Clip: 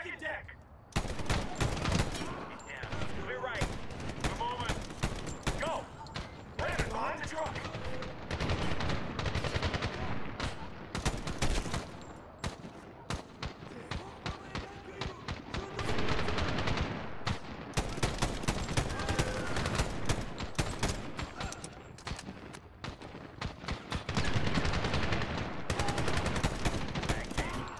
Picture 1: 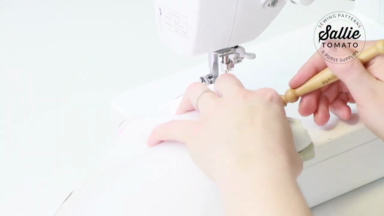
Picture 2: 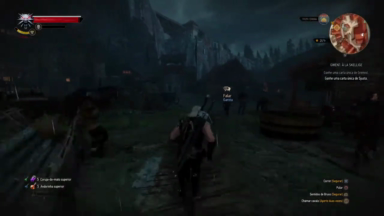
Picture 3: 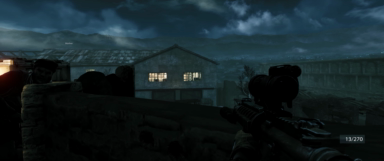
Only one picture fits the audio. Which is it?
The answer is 3